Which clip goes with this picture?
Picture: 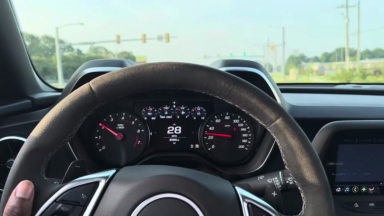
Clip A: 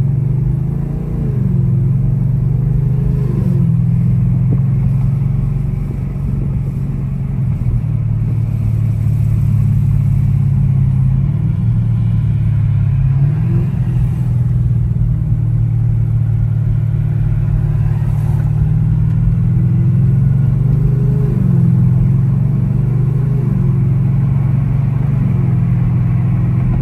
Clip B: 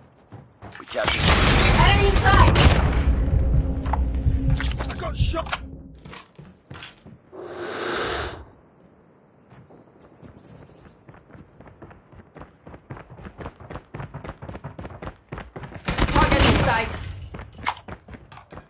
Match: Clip A